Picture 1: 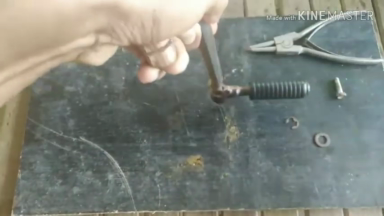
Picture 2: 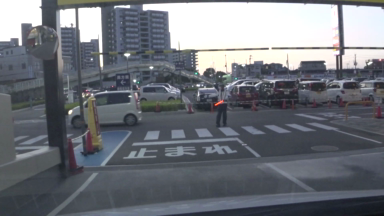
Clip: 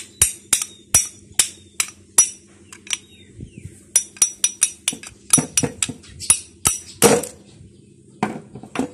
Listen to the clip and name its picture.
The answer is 1